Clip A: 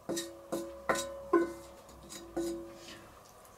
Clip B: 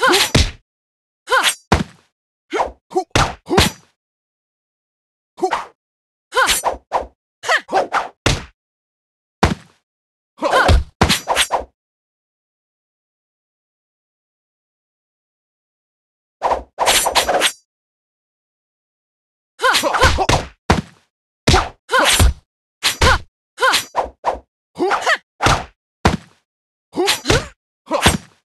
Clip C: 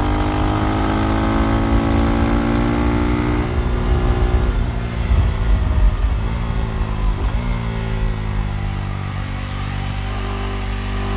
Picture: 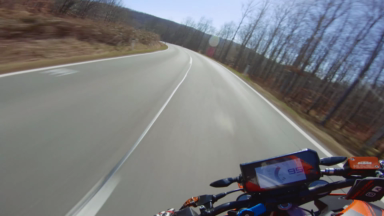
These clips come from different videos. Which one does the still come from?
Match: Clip C